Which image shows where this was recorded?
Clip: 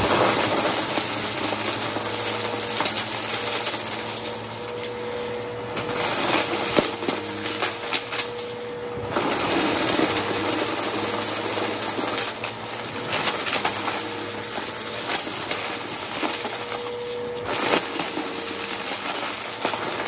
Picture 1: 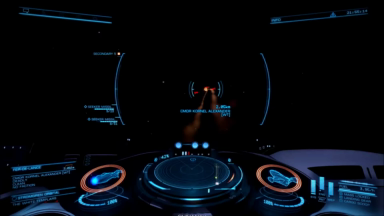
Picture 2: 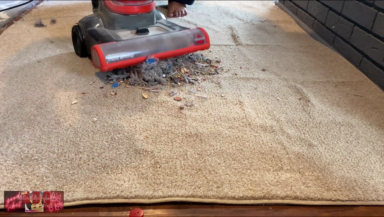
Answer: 2